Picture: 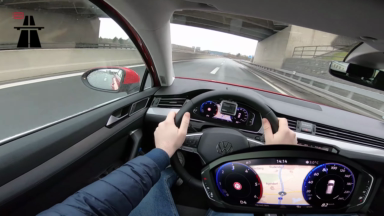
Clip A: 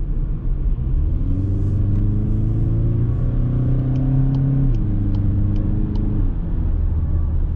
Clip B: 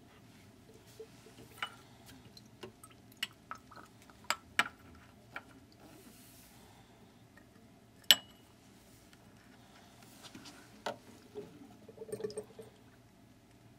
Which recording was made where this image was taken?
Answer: A